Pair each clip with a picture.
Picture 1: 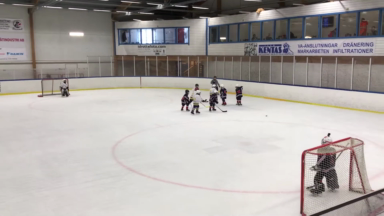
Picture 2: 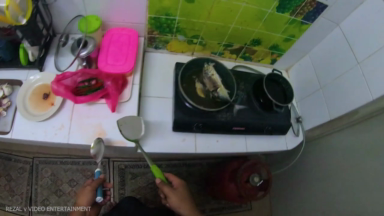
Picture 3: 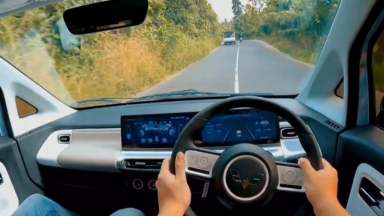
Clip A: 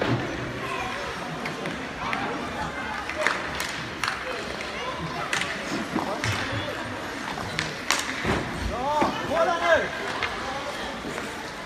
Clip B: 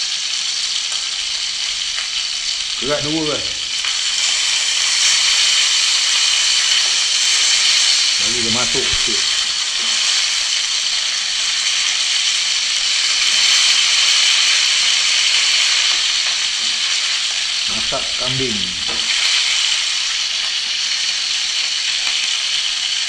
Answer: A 1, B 2